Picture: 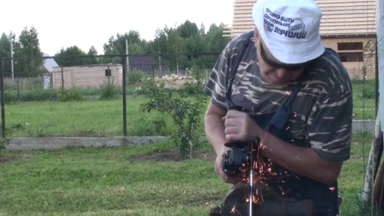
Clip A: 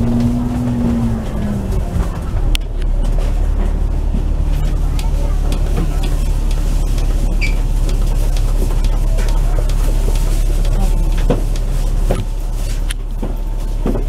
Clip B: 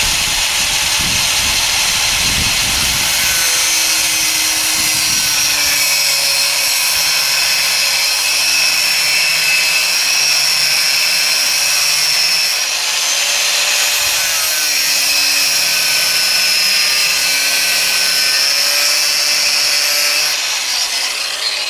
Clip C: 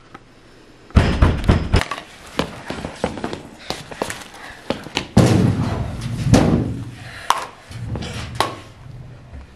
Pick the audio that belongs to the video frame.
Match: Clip B